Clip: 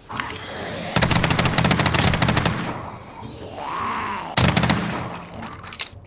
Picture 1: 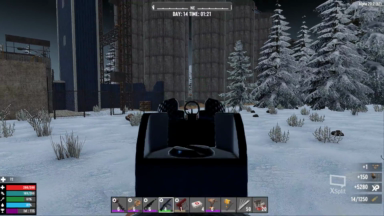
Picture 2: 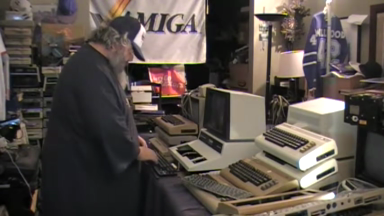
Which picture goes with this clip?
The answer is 1